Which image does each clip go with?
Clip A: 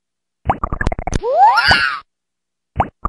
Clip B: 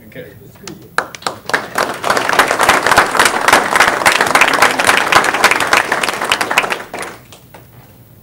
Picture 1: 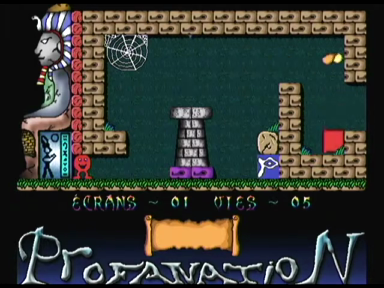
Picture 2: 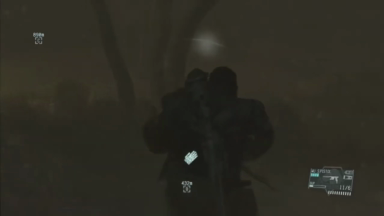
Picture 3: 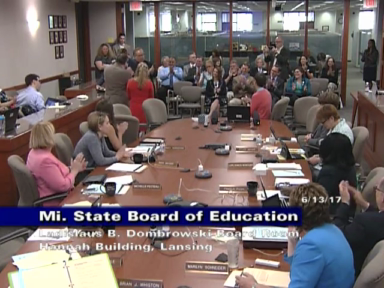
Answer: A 1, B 3